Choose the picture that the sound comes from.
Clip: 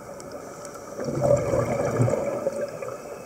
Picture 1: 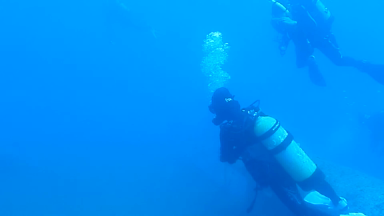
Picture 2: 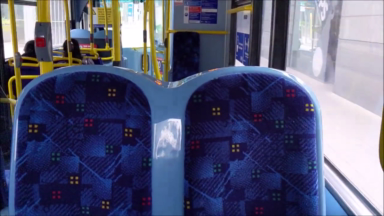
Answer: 1